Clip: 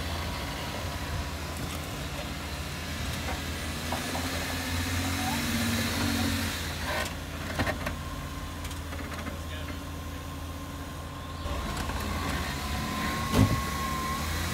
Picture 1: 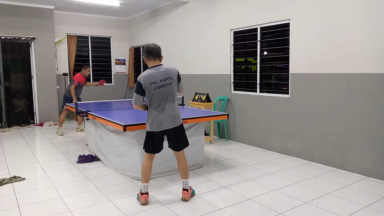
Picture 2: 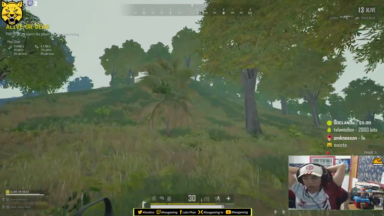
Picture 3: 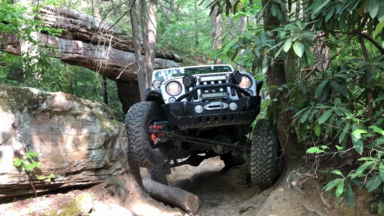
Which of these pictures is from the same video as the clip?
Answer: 3